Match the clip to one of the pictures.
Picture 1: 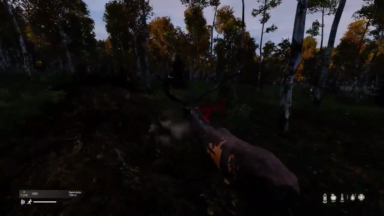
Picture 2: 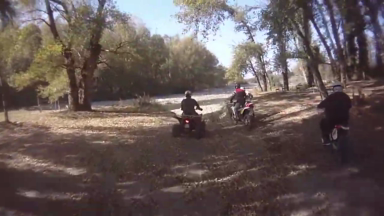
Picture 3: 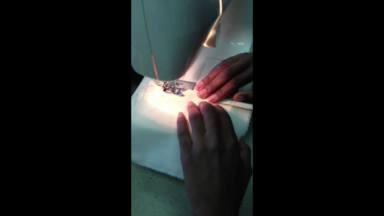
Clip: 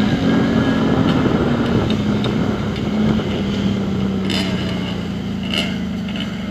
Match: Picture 2